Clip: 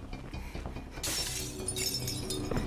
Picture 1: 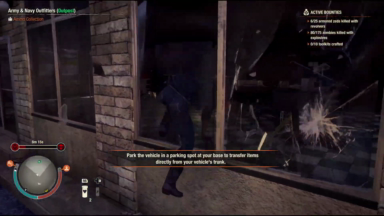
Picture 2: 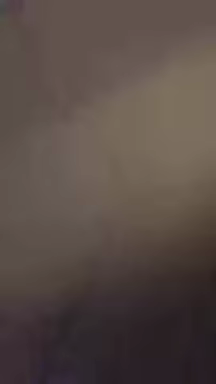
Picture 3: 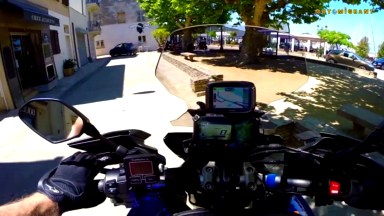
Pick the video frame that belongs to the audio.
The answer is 1